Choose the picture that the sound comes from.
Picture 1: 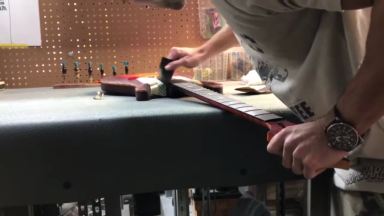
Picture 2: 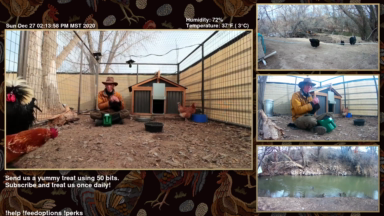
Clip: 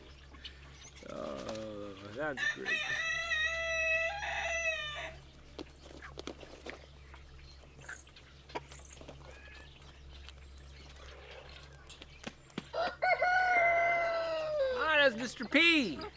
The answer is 2